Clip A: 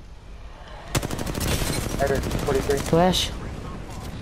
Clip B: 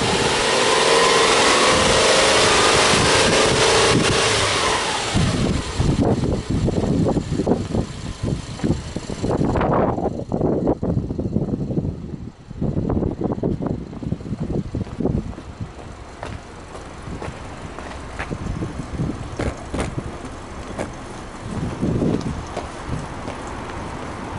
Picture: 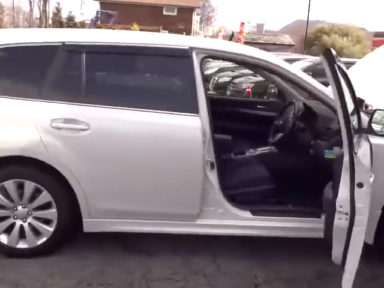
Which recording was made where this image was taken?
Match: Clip B